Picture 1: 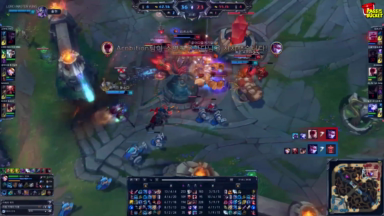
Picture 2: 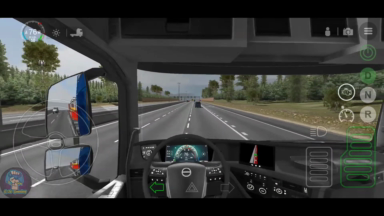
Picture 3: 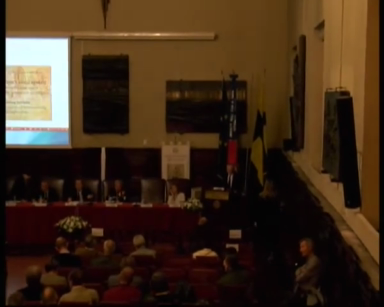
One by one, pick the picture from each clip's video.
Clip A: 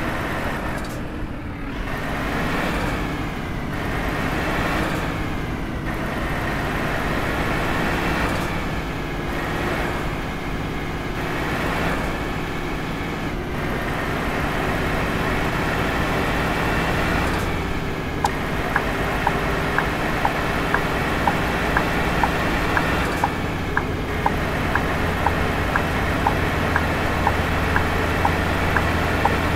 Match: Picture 2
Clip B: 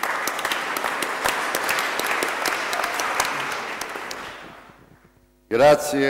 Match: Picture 3